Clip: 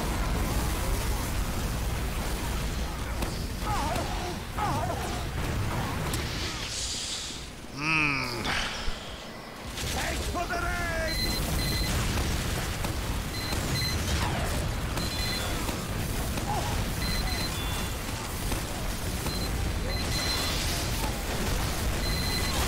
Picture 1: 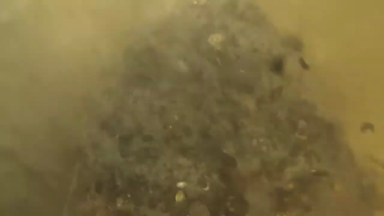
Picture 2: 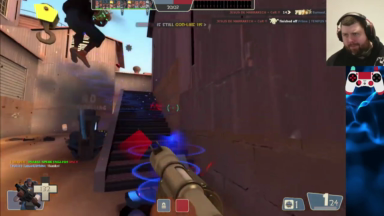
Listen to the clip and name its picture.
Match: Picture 2